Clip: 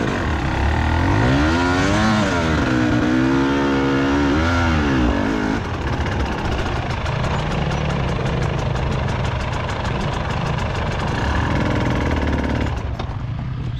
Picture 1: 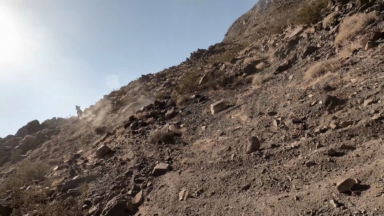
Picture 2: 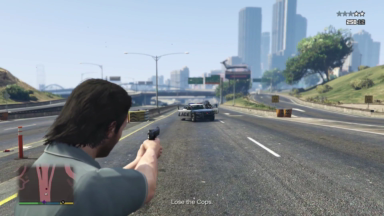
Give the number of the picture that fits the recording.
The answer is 1